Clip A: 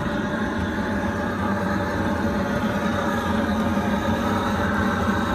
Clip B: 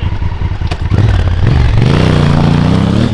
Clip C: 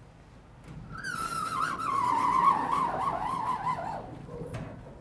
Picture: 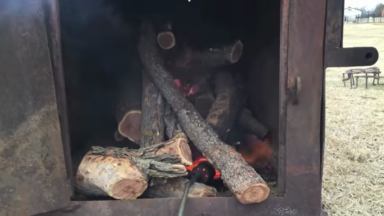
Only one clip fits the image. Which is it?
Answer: A